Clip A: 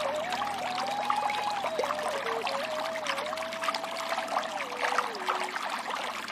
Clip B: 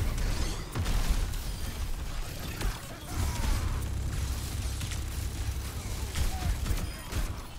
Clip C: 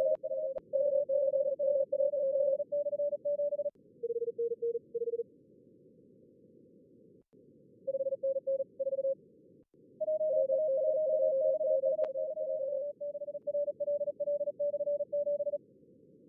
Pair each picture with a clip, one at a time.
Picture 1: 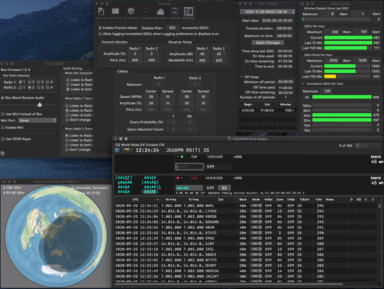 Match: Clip C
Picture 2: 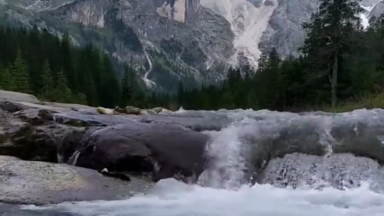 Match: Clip A